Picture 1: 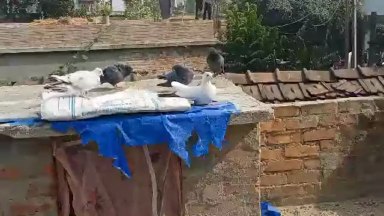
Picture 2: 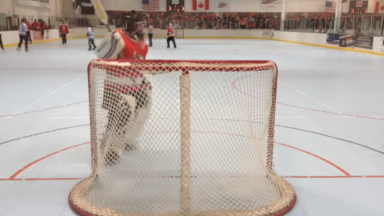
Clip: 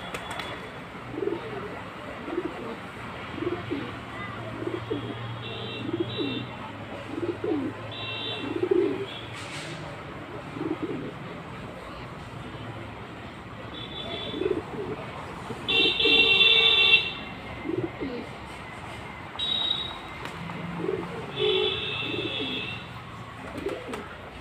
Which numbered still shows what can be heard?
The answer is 1